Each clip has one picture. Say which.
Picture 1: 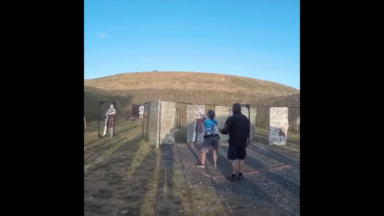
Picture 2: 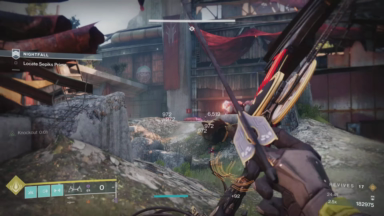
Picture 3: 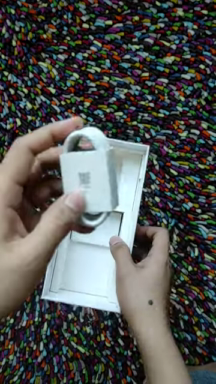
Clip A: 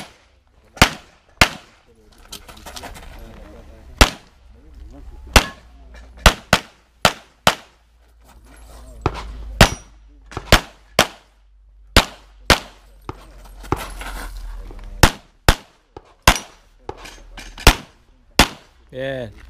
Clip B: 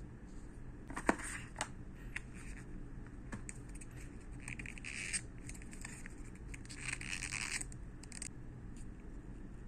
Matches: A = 1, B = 3